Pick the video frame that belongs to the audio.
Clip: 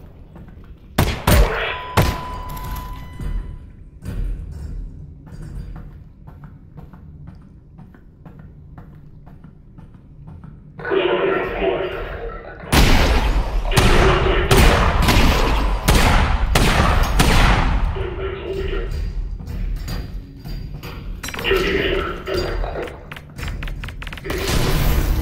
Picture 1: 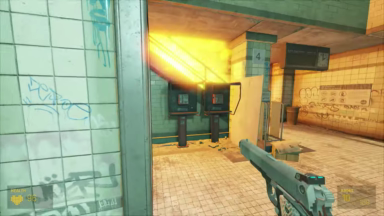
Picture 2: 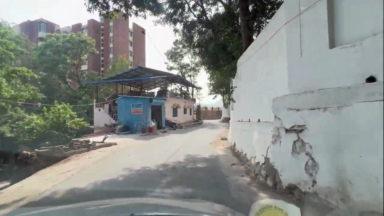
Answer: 1